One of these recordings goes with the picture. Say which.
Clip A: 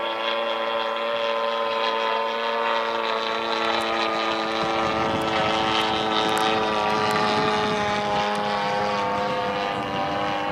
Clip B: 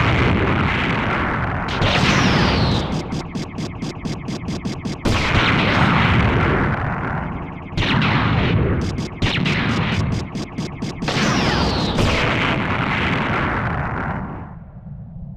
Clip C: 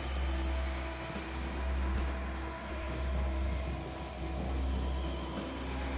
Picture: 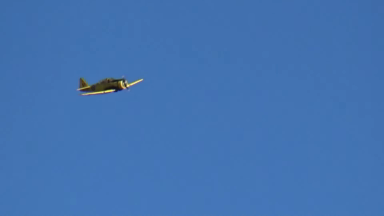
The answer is A